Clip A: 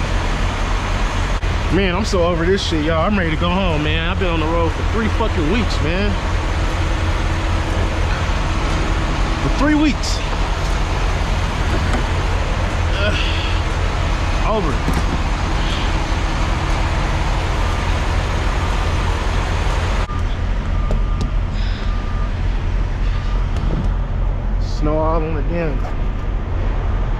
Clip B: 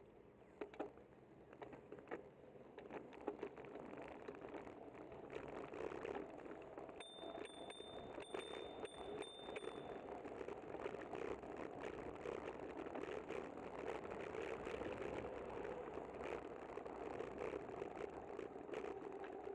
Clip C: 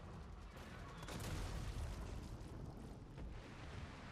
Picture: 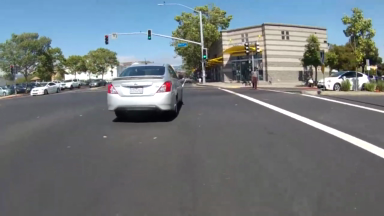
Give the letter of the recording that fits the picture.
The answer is B